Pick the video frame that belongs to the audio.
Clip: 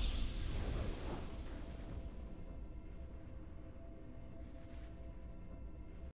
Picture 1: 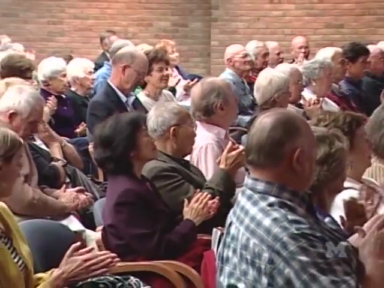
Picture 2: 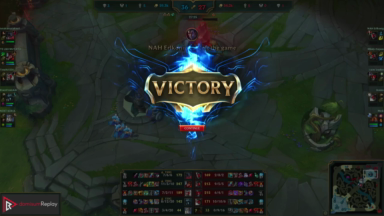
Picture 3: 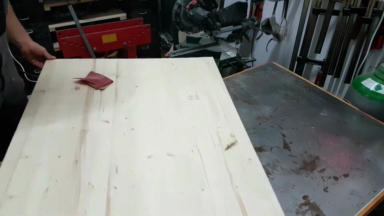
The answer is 2